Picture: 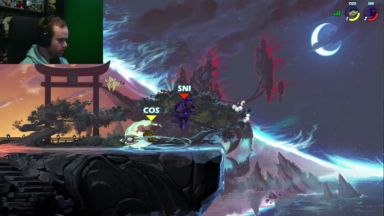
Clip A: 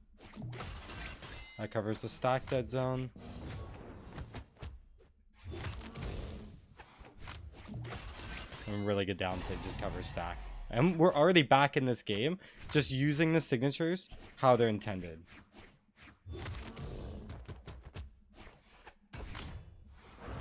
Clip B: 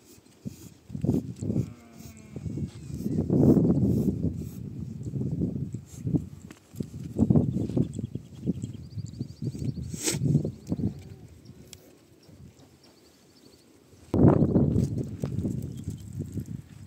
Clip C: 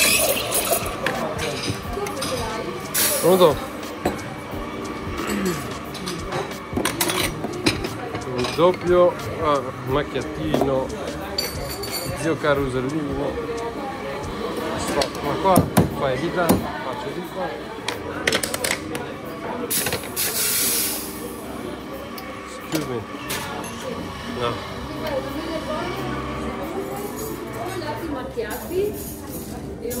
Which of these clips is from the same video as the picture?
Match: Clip A